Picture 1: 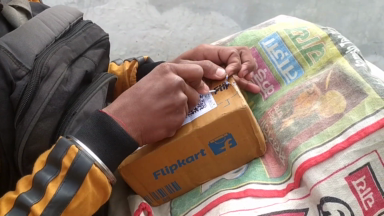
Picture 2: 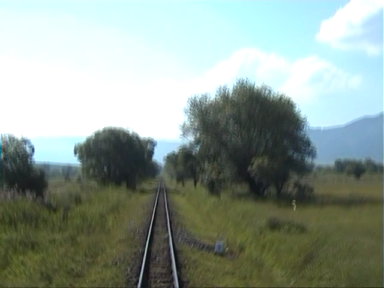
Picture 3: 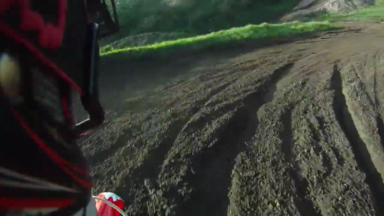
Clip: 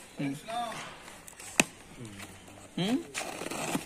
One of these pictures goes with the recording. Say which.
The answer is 1